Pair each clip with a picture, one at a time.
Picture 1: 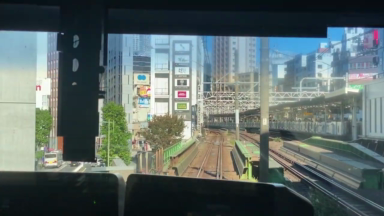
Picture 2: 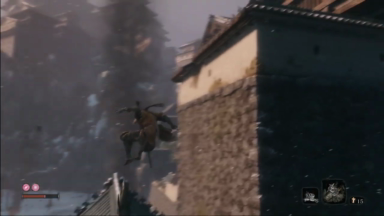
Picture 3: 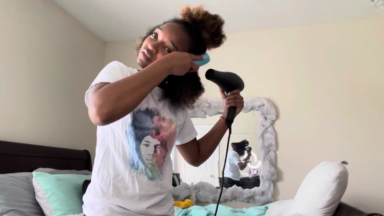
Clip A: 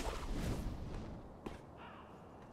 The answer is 2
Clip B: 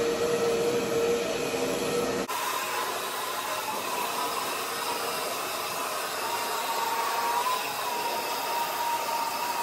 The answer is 3